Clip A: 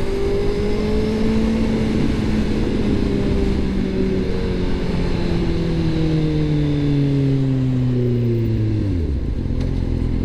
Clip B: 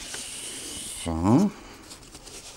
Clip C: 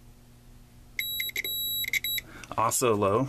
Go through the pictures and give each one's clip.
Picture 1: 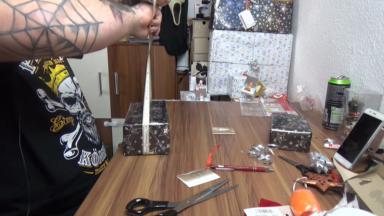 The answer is B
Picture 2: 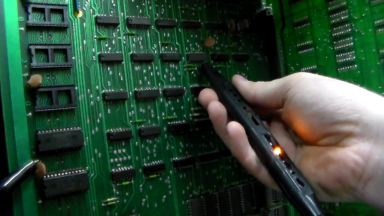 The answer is C